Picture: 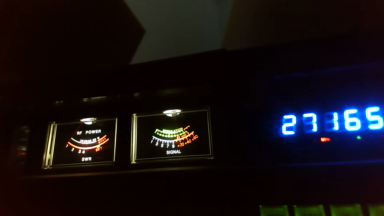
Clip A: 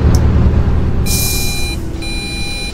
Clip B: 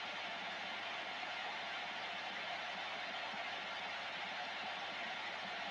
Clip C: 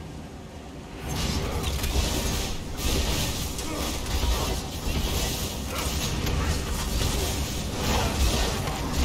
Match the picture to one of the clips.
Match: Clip B